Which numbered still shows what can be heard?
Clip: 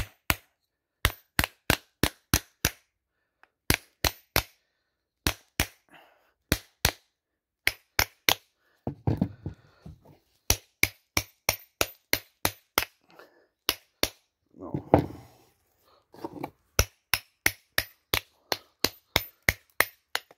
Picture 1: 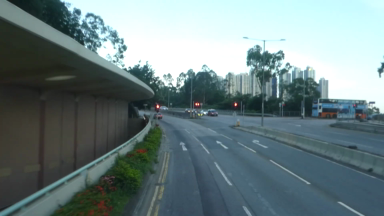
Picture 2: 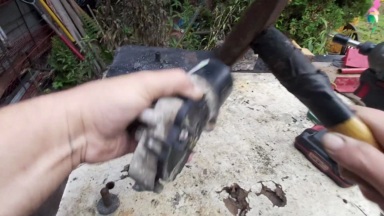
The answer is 2